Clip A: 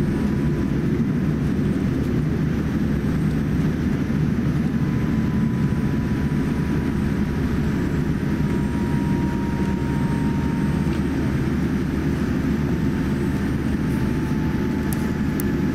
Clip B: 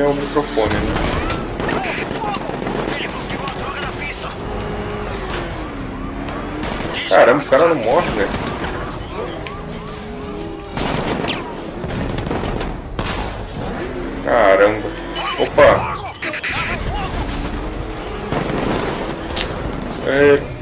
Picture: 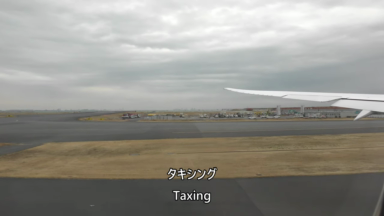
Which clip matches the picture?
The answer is A